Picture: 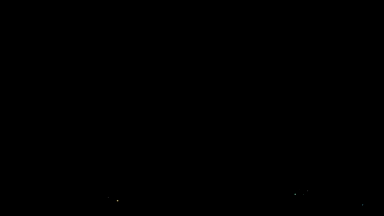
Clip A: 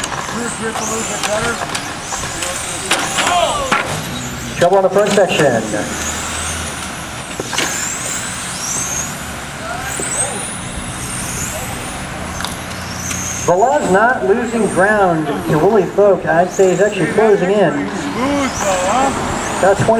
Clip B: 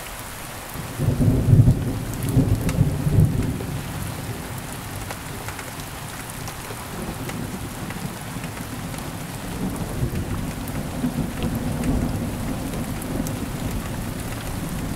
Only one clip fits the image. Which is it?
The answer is B